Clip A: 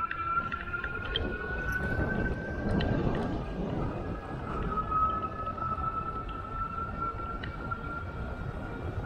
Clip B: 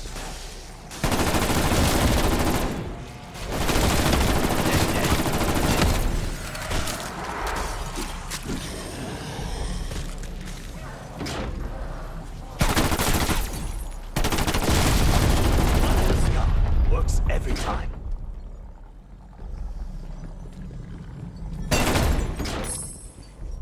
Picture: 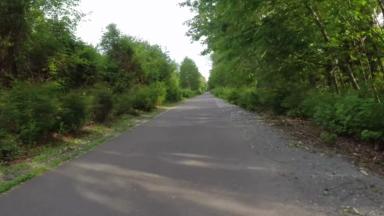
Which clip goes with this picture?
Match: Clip A